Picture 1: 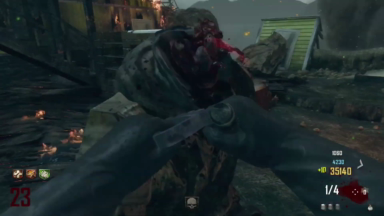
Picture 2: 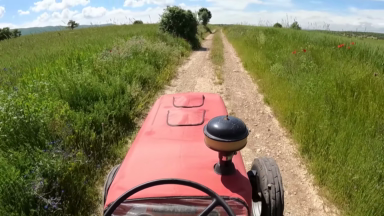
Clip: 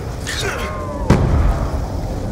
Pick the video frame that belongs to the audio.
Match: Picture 1